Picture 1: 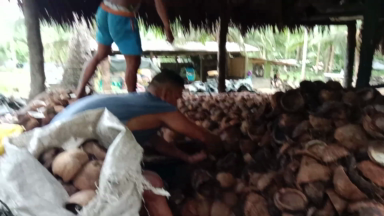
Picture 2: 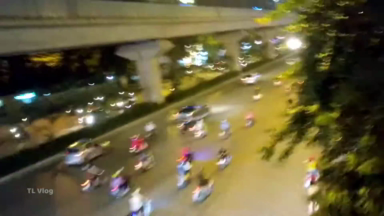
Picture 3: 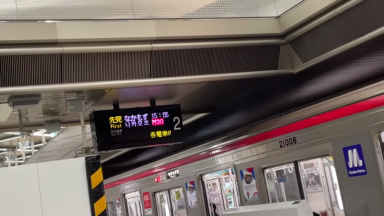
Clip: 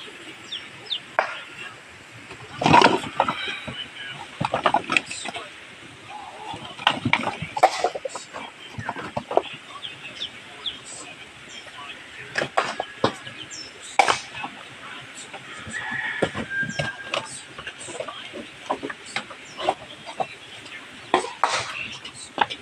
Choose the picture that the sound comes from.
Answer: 1